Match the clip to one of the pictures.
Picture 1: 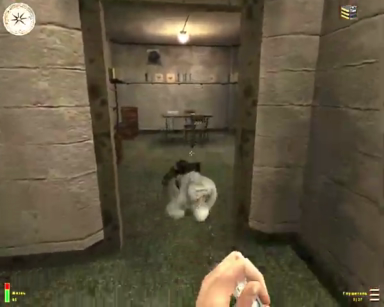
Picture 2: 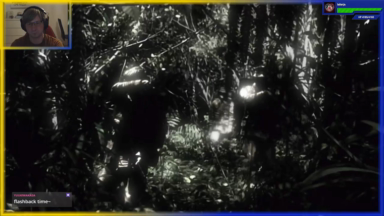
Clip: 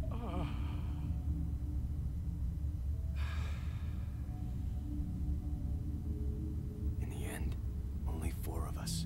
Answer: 2